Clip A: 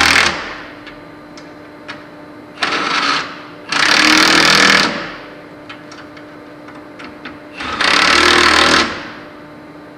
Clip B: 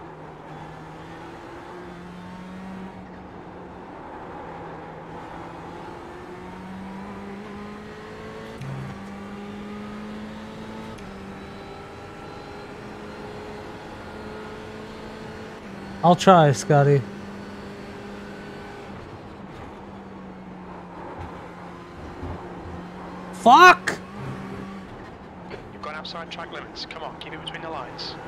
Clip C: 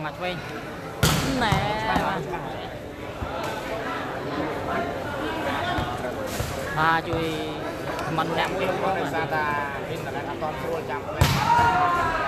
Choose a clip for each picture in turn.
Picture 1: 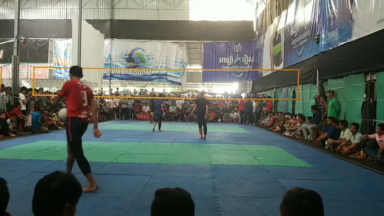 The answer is C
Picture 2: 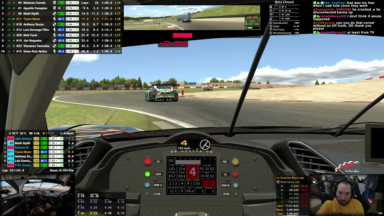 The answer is B